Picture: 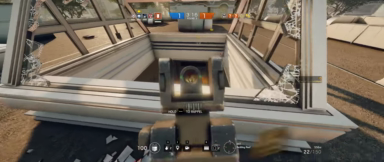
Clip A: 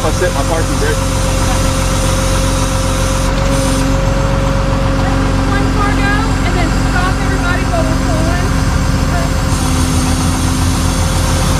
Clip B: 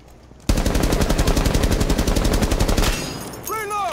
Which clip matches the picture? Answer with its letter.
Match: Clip B